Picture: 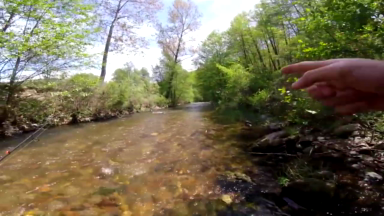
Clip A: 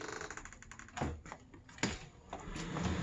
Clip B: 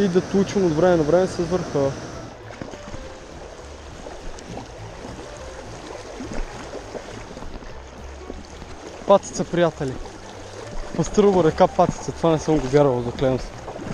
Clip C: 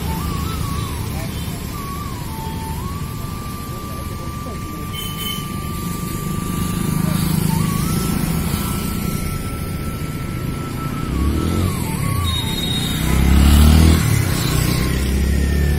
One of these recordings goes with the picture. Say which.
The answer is B